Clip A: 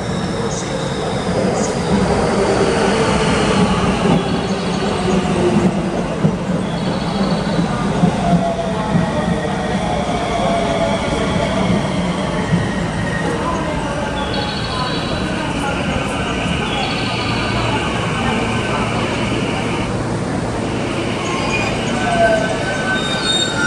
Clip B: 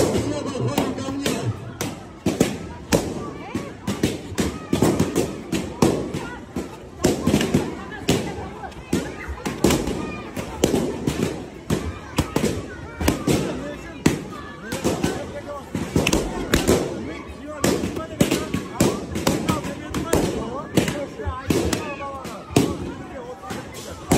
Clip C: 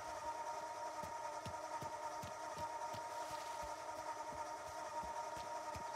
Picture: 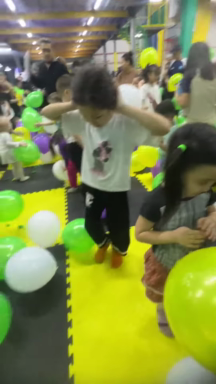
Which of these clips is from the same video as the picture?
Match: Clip B